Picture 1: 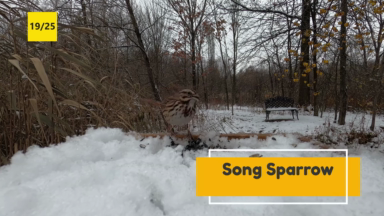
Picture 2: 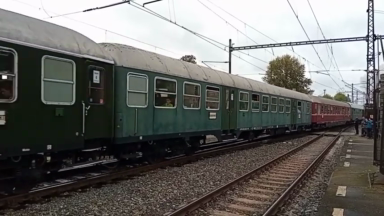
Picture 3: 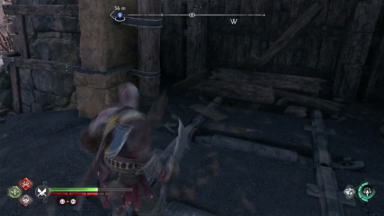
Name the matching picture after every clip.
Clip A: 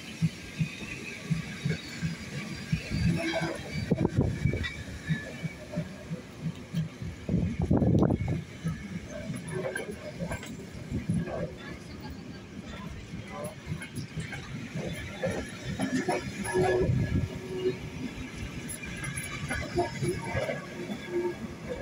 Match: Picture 2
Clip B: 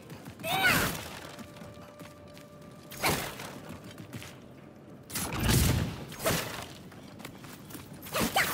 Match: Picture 3